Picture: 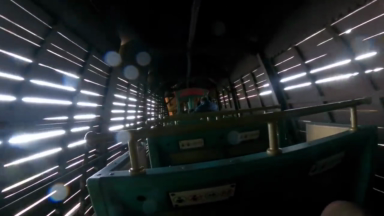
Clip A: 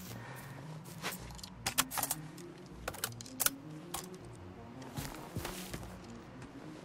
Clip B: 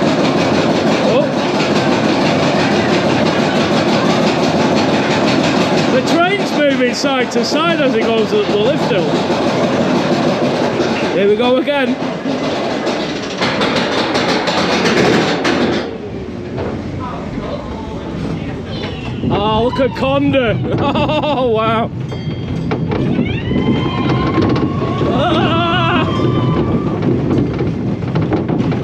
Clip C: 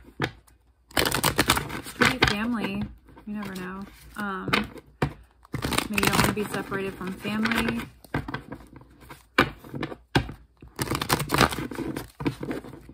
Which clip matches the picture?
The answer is B